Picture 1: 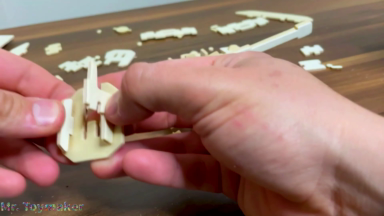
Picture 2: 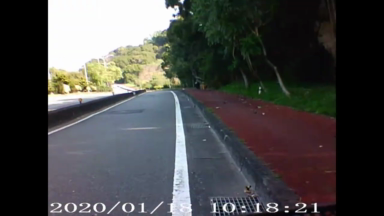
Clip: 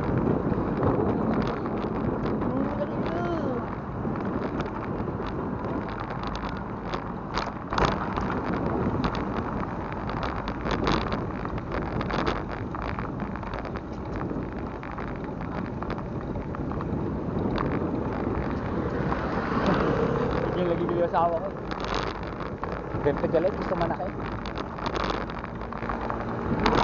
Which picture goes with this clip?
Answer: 2